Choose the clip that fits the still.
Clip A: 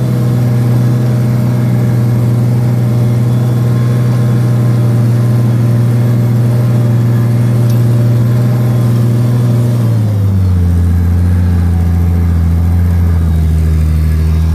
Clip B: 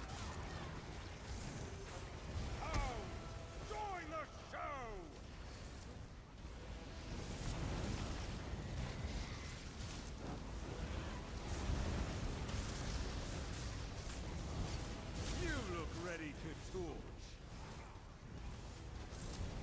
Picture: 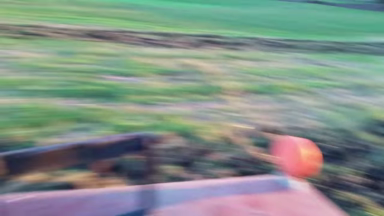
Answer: A